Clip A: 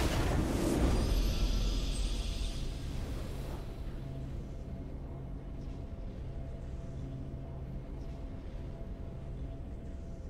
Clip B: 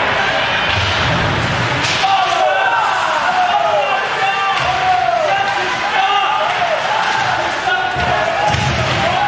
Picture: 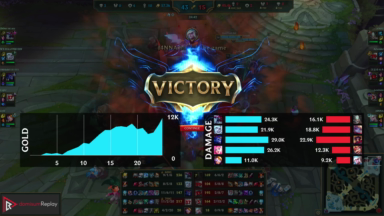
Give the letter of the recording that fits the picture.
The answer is A